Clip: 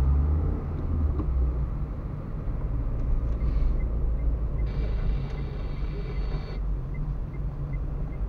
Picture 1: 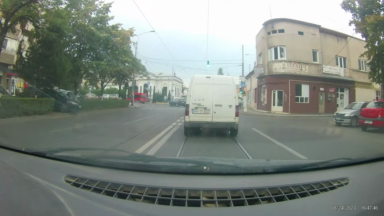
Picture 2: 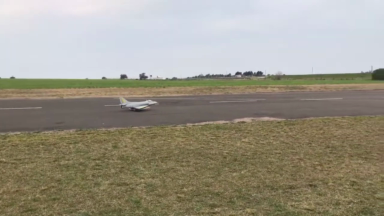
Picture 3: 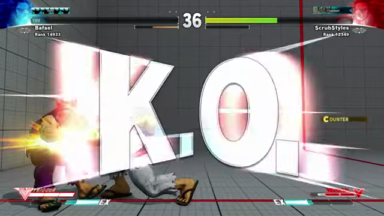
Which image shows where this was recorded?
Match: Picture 1